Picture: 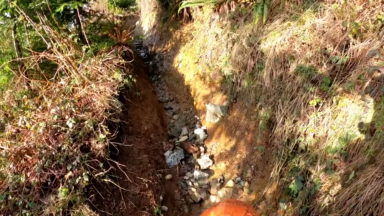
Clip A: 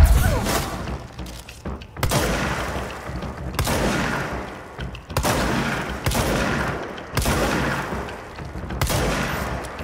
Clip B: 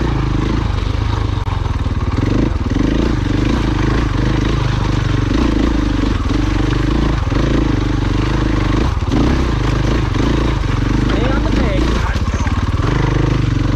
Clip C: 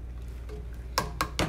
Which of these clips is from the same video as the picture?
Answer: B